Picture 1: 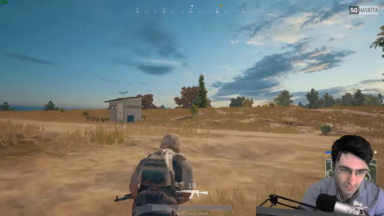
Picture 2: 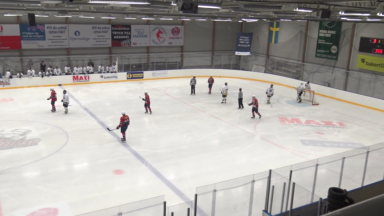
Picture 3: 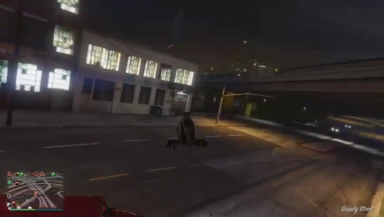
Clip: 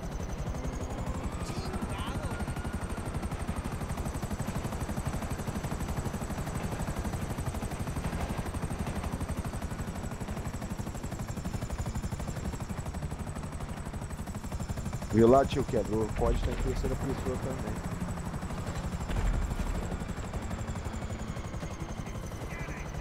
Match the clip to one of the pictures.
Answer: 3